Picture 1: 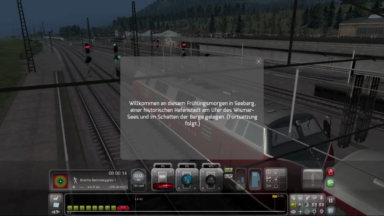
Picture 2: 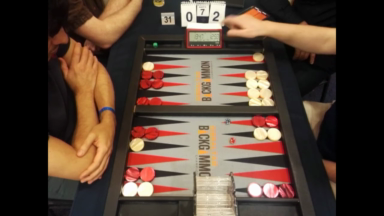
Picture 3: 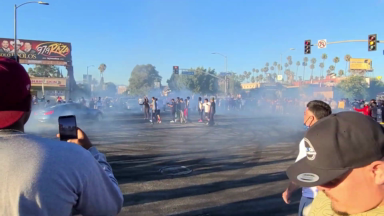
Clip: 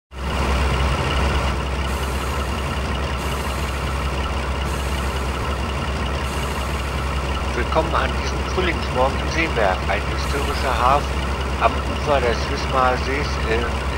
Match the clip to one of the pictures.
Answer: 1